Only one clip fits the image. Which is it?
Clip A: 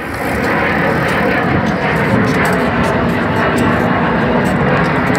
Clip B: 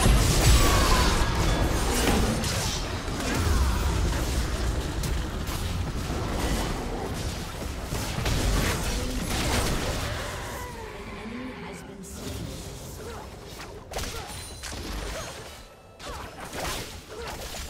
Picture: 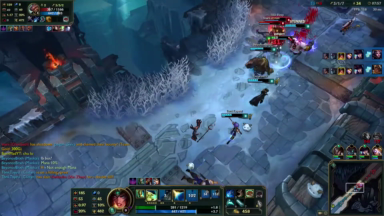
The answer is B